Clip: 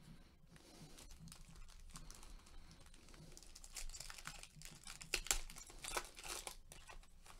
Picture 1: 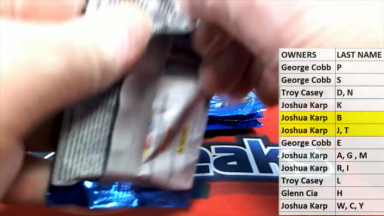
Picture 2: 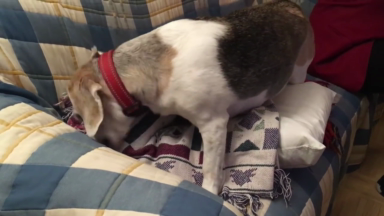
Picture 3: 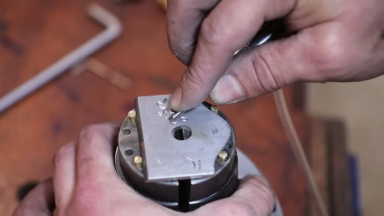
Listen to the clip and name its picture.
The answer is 1